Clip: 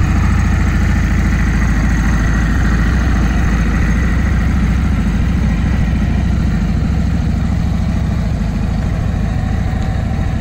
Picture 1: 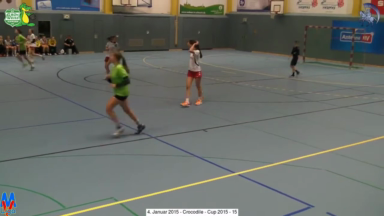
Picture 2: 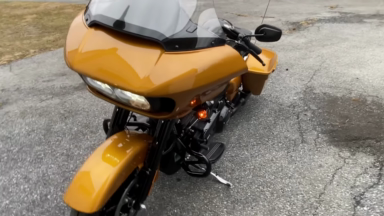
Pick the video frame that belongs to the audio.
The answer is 2